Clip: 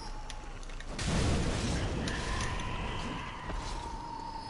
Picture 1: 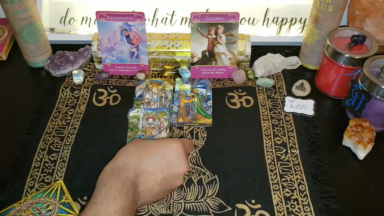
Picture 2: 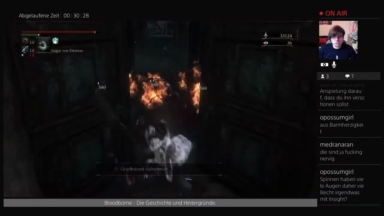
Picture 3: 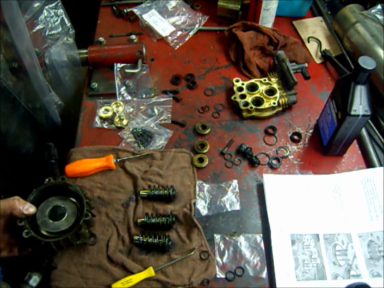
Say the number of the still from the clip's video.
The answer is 2